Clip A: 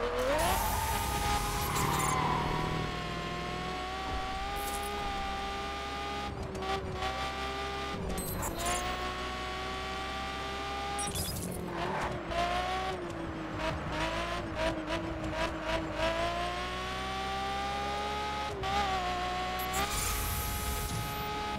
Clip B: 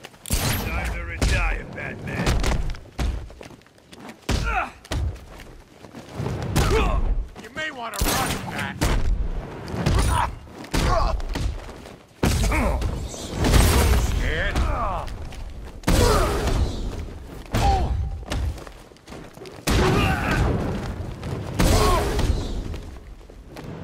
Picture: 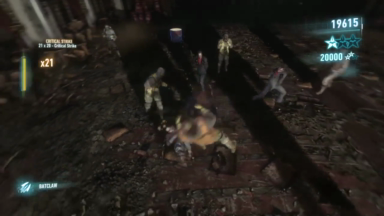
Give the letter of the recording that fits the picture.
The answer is B